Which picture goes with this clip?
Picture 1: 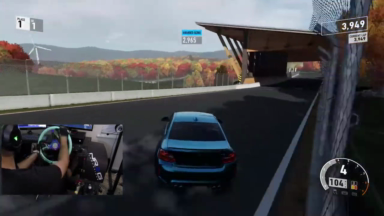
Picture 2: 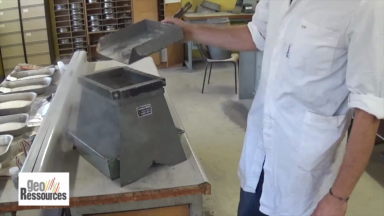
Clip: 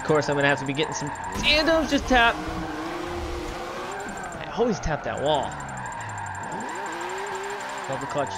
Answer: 1